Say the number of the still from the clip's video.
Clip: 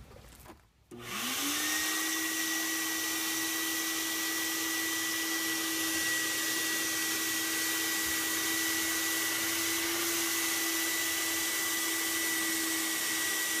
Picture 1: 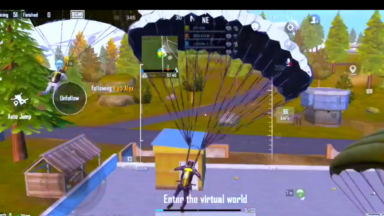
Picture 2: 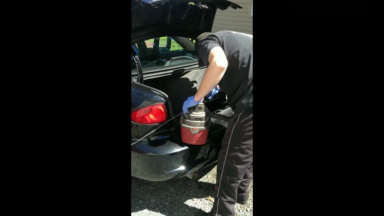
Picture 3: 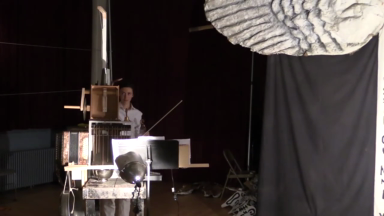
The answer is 2